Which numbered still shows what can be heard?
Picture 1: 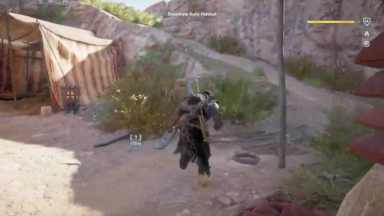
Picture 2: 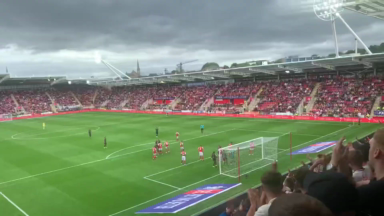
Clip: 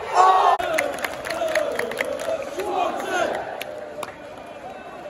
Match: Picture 2